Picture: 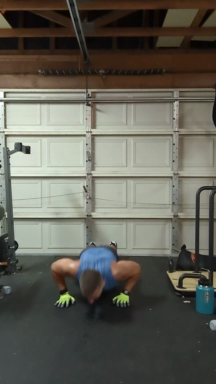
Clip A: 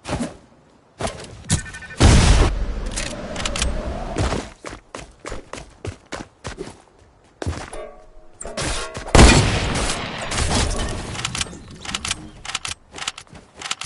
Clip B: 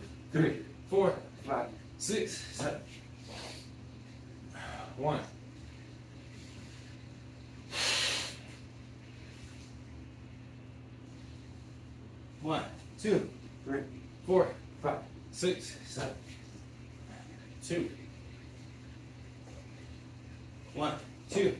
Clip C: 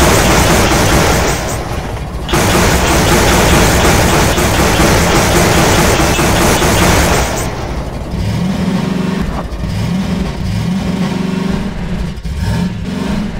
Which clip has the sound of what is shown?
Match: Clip B